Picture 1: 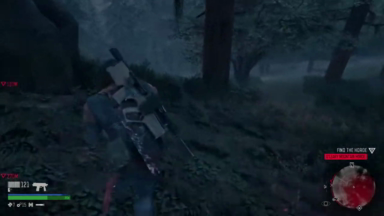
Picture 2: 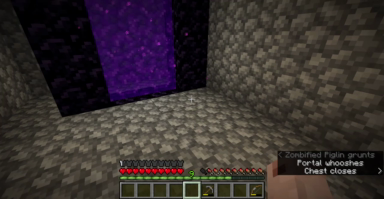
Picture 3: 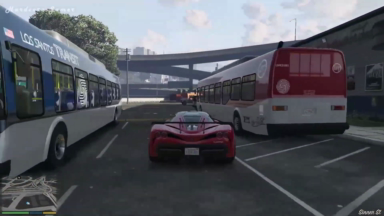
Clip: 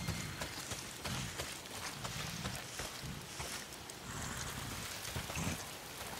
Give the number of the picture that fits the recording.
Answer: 1